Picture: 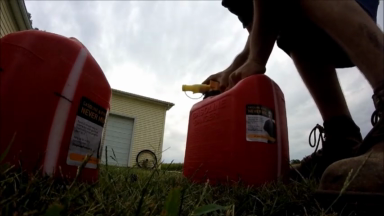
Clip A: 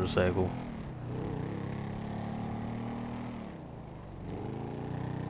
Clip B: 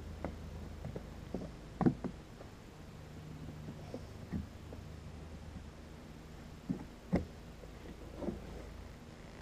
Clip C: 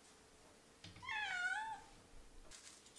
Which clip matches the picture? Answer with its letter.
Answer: B